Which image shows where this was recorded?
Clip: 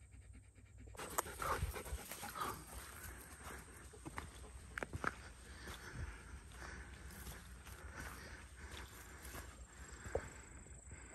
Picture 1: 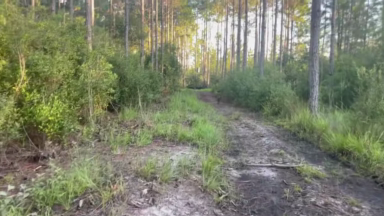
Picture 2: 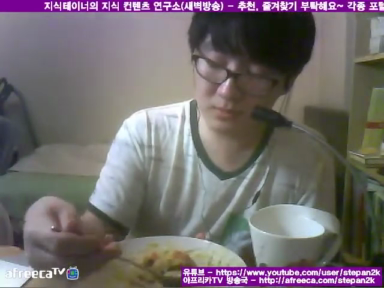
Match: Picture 1